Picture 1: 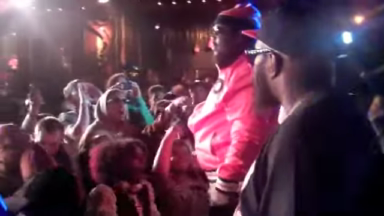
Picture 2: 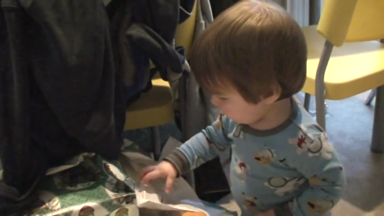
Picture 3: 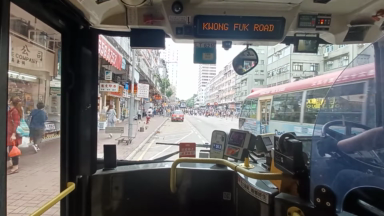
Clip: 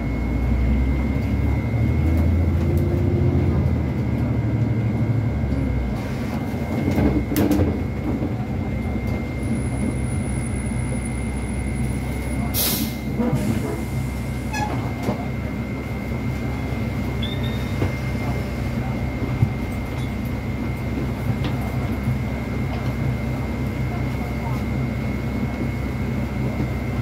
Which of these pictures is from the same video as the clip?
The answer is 3